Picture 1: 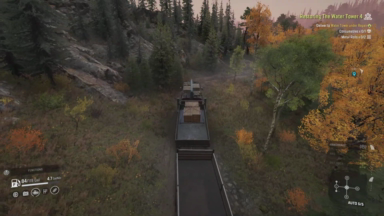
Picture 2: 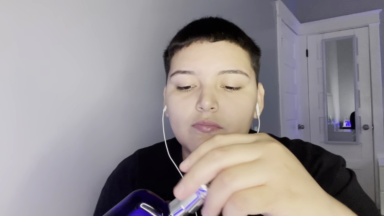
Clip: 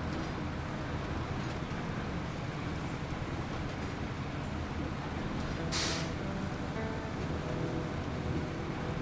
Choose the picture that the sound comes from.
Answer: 1